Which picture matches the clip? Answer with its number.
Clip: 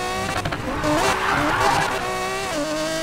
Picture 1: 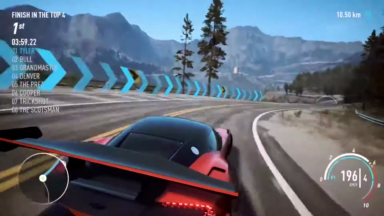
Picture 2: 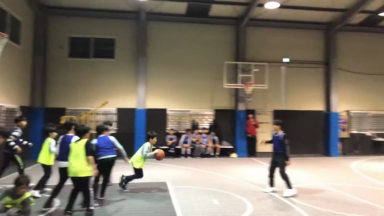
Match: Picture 1